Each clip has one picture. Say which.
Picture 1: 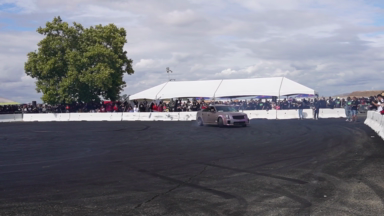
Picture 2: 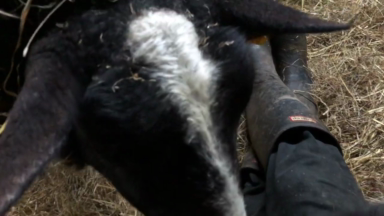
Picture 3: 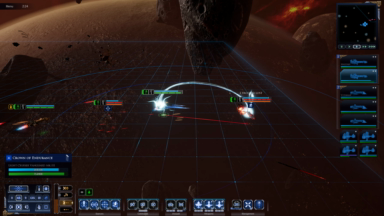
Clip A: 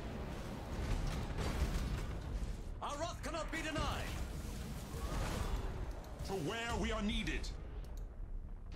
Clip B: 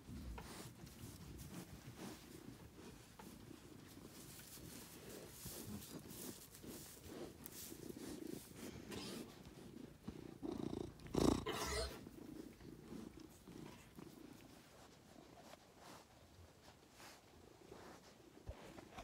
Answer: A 3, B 2